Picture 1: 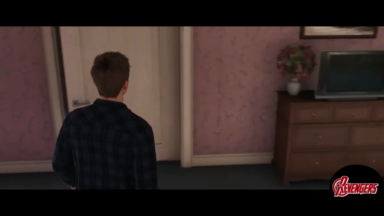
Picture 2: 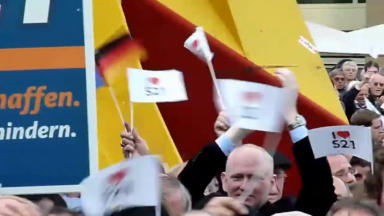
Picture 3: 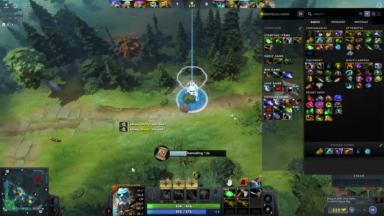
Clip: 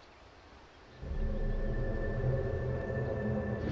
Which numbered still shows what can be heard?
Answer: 3